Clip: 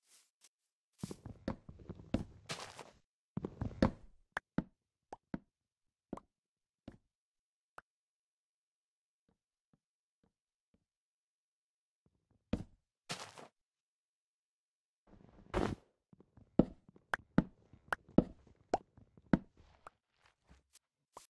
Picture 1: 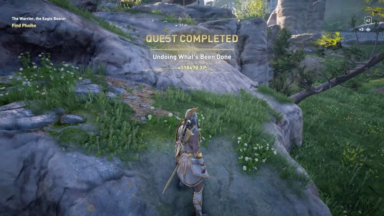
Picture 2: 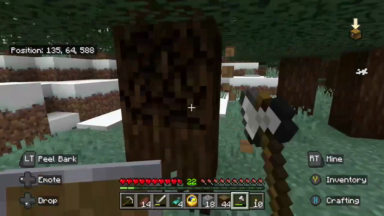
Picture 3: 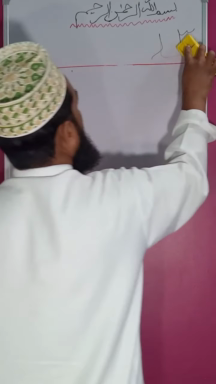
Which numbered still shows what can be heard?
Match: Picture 2